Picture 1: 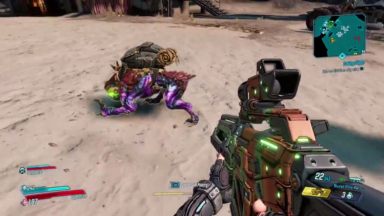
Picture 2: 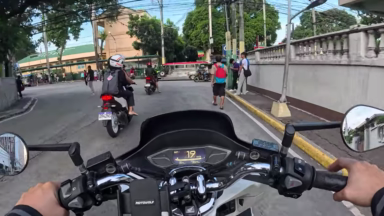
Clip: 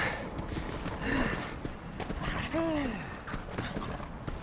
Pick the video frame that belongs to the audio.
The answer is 1